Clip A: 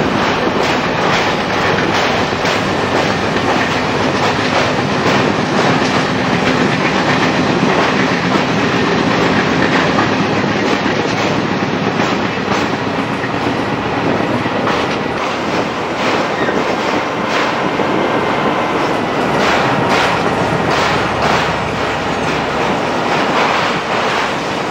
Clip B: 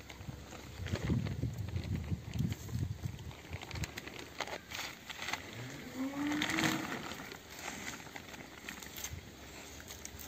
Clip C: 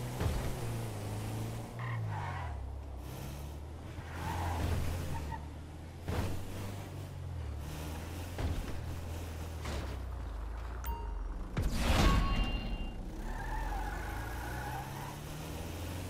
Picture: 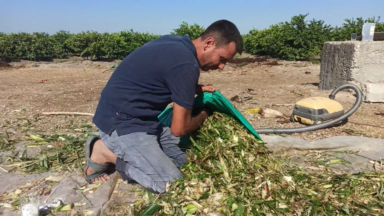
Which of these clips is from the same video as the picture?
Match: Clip B